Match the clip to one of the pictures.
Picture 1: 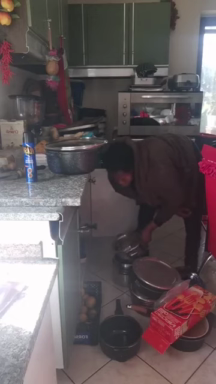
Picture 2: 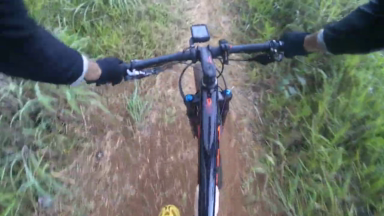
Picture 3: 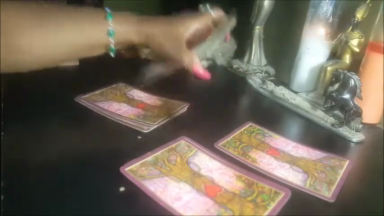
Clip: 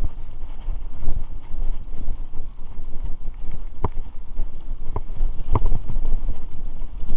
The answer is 2